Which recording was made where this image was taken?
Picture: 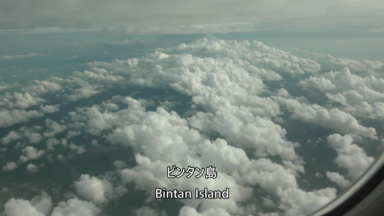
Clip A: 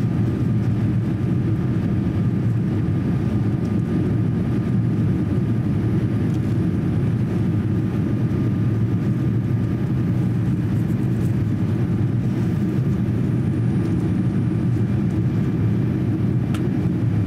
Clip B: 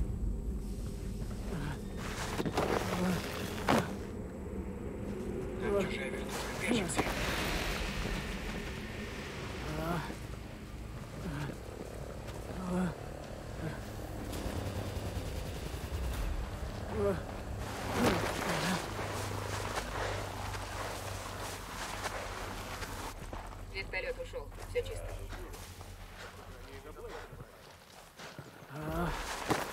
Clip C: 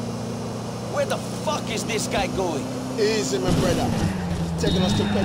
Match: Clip A